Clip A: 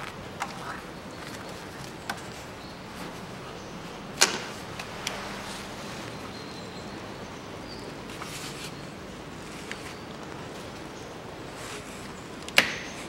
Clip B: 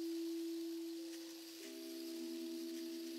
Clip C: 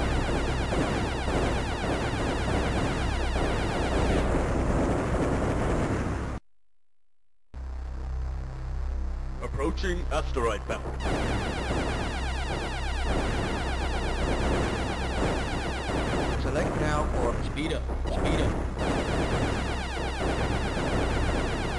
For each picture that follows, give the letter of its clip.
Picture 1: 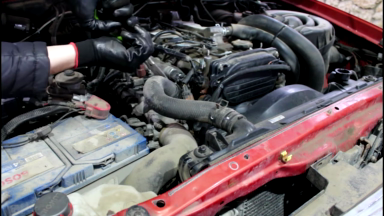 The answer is A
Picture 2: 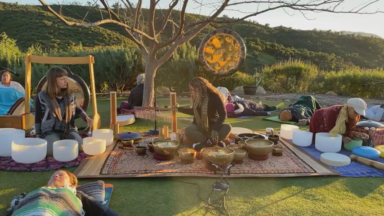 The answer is B